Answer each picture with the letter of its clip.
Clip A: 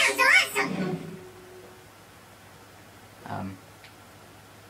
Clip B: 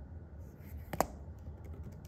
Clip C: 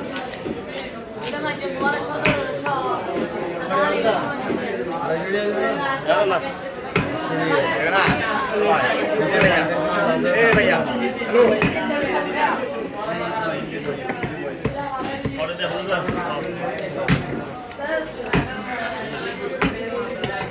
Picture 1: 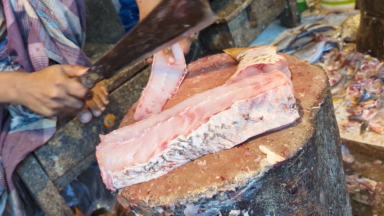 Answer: C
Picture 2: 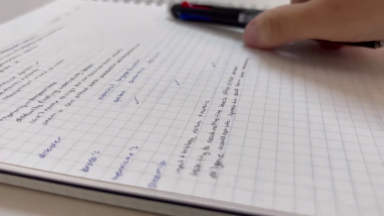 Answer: B